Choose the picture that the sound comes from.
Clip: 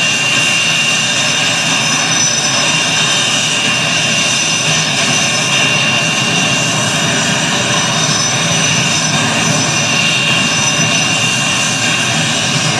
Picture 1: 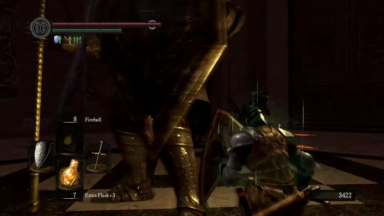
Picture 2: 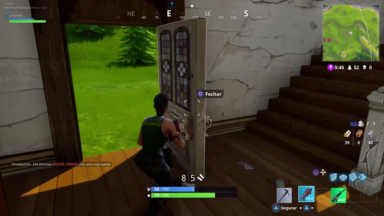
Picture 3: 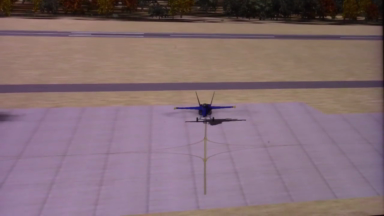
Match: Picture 3